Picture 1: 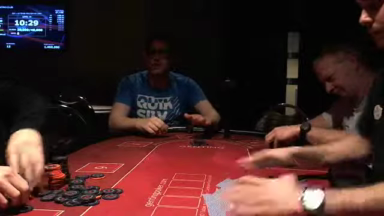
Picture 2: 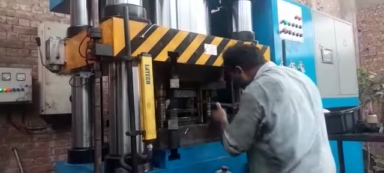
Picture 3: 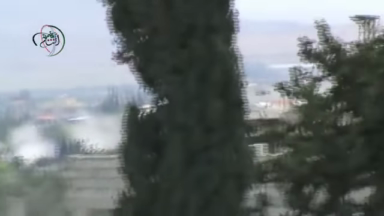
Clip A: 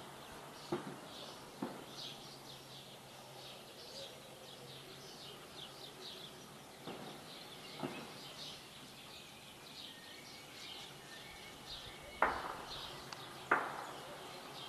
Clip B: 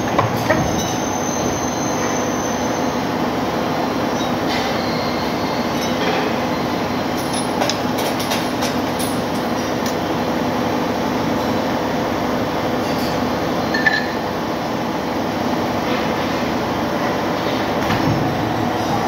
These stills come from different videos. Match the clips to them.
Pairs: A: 3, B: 2